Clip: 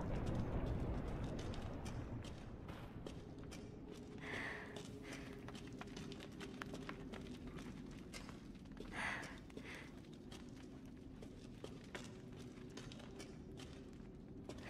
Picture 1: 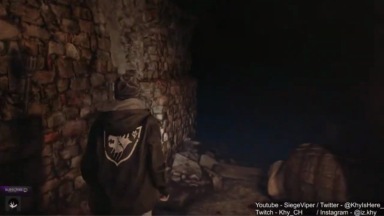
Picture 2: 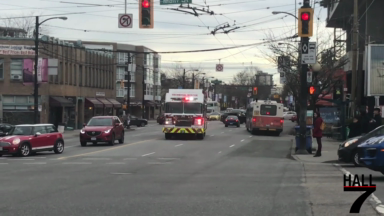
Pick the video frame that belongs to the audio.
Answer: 1